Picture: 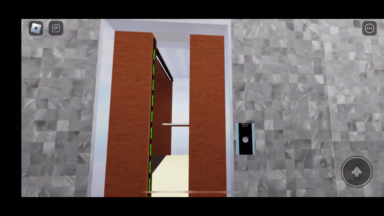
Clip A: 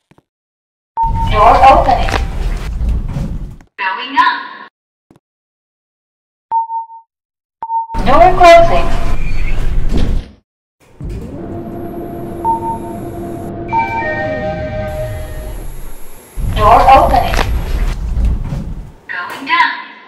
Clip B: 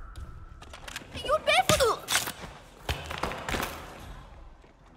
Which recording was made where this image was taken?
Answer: A